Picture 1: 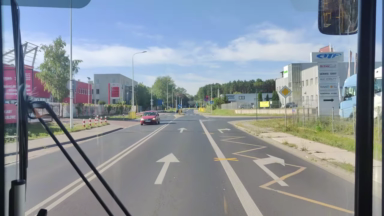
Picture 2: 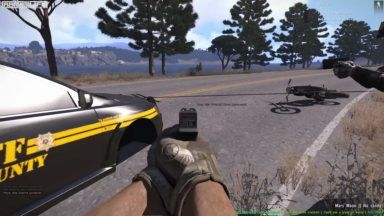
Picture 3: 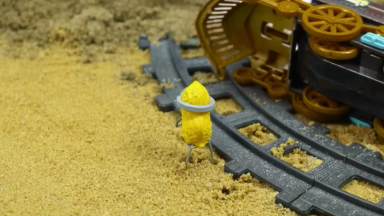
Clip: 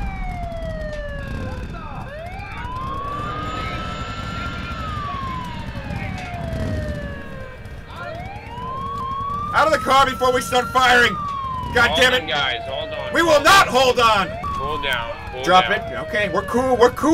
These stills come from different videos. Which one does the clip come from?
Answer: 2